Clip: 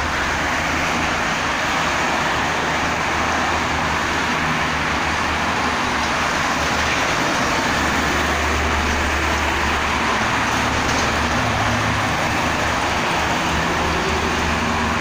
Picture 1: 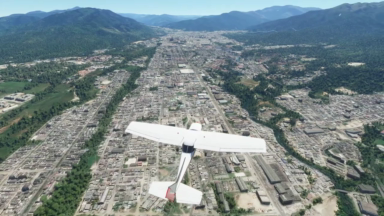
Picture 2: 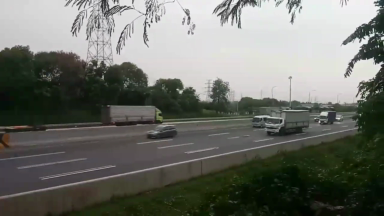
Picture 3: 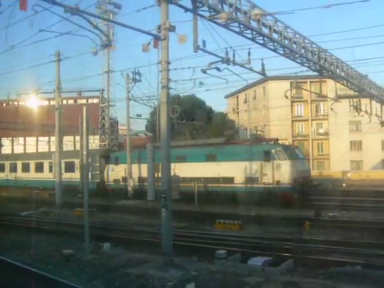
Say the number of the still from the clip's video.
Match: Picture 2